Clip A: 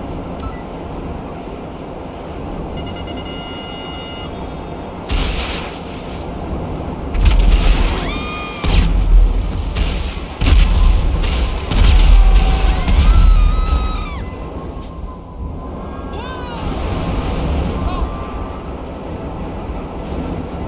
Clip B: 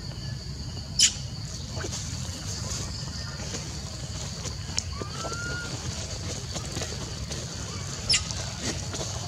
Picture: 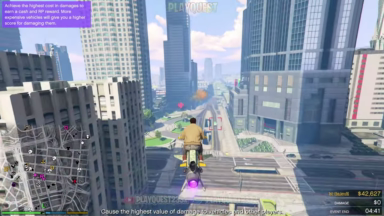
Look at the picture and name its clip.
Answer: A